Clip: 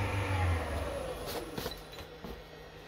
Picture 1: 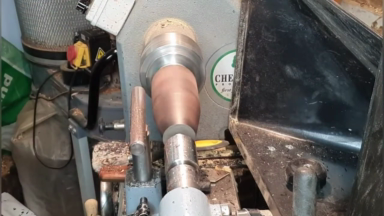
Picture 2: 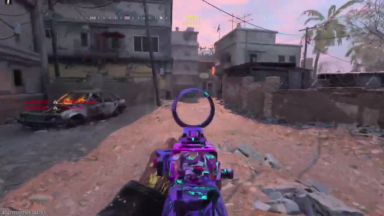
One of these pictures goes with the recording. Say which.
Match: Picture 1